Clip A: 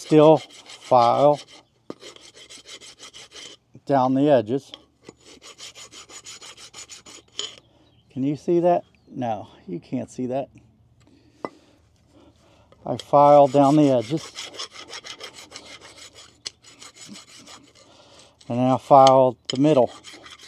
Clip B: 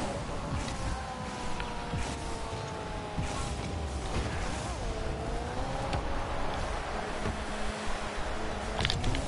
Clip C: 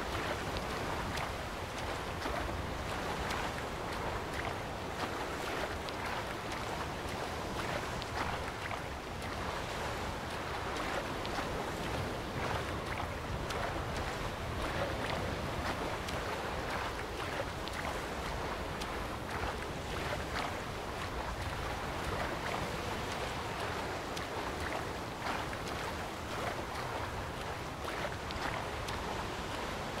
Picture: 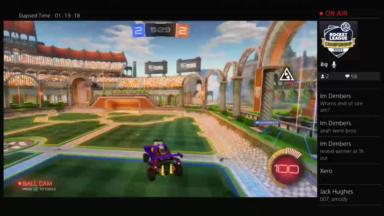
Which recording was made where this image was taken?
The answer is B